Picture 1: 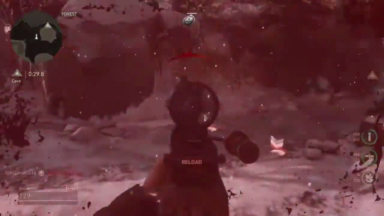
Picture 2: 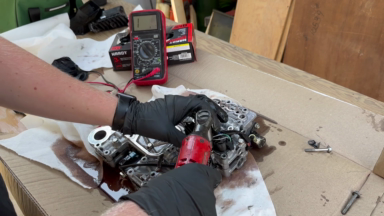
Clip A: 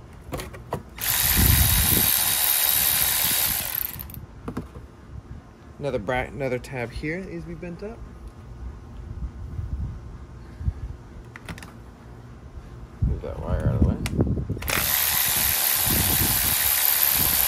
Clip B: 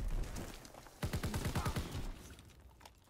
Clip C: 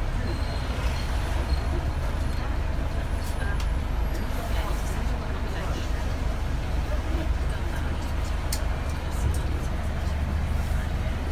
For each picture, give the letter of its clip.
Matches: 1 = B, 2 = A